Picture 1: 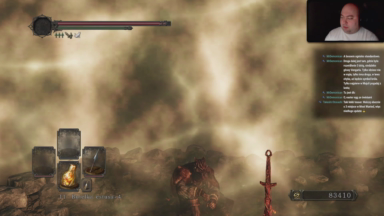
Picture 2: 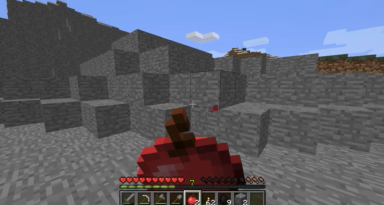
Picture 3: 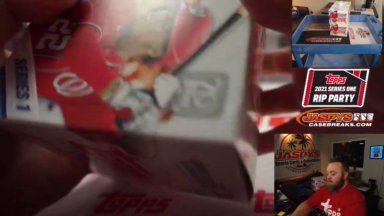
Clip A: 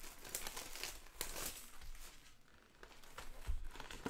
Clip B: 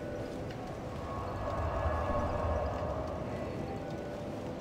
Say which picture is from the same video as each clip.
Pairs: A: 3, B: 1